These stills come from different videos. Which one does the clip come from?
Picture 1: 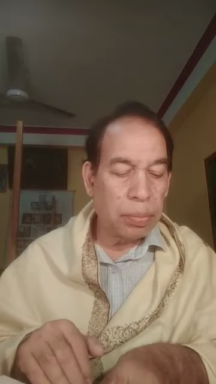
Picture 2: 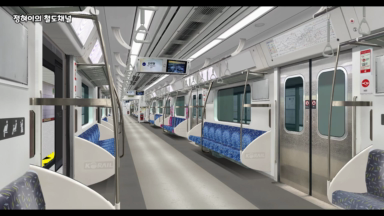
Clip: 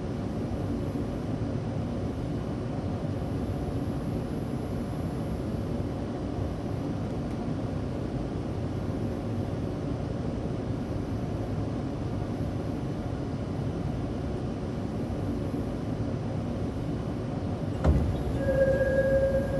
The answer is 2